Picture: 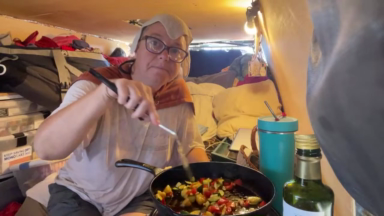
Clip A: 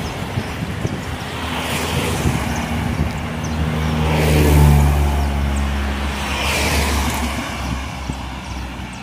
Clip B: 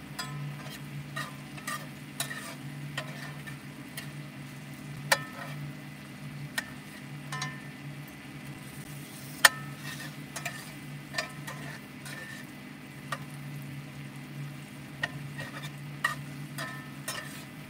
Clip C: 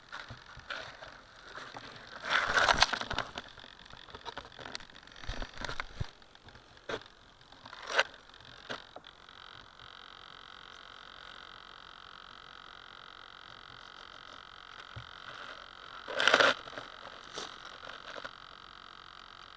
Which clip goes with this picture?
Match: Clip B